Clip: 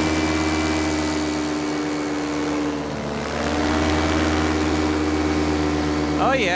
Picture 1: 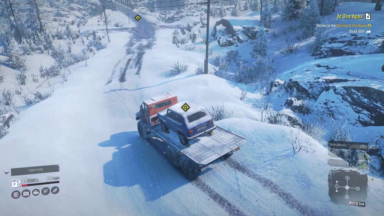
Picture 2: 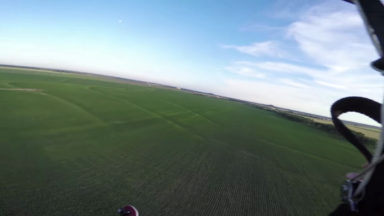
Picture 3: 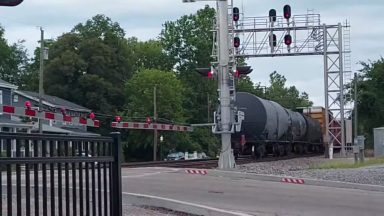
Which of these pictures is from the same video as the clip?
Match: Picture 2